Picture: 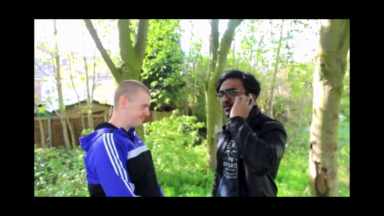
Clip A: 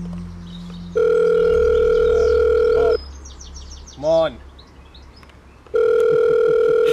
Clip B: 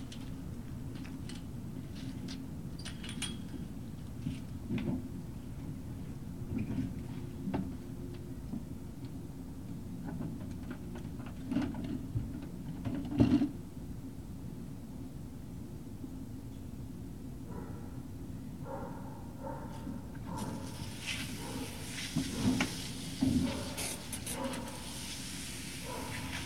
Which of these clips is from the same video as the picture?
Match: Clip A